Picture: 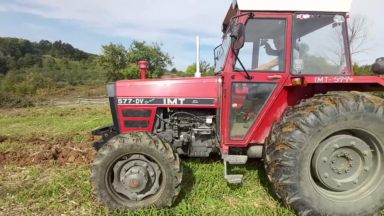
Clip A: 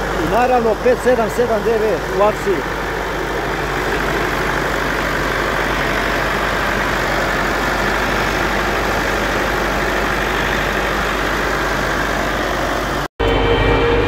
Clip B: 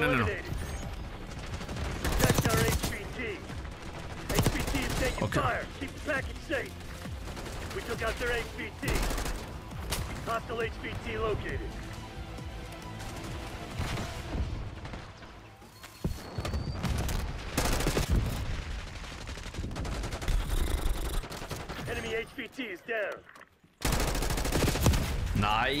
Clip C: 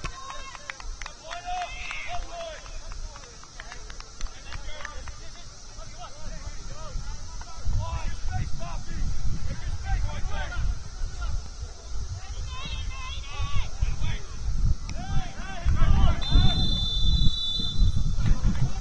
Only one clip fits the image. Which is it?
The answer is A